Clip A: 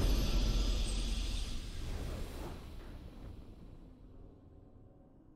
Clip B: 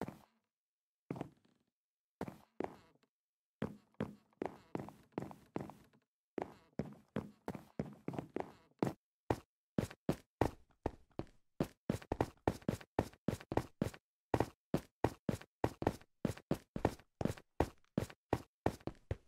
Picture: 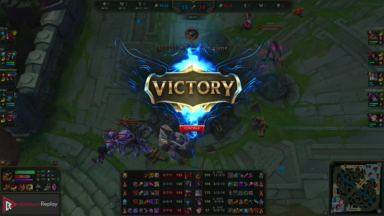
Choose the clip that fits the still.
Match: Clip A